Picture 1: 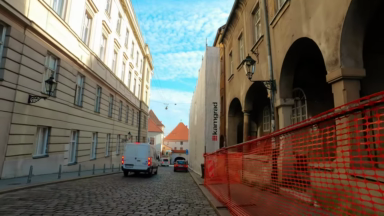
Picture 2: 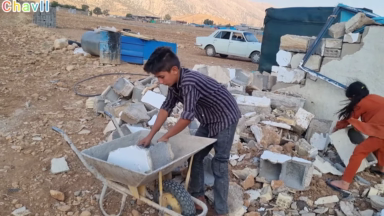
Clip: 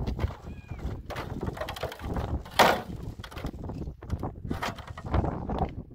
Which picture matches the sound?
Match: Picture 2